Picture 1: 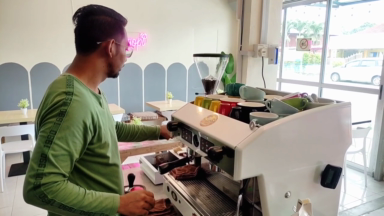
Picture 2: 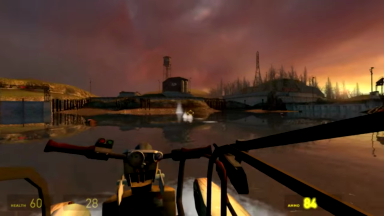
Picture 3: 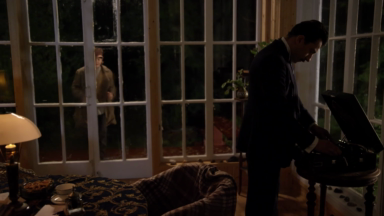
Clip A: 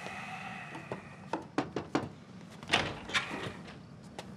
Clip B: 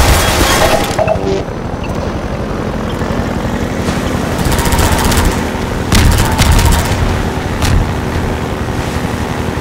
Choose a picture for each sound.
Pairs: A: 3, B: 2